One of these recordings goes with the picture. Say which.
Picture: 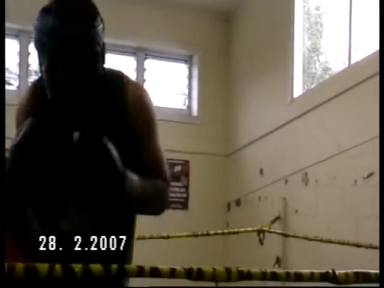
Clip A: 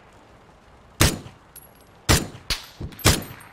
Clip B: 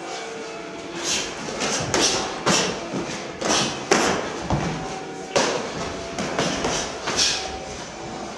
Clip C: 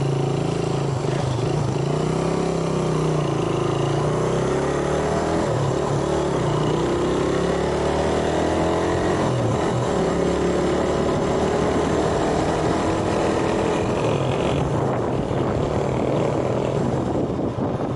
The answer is B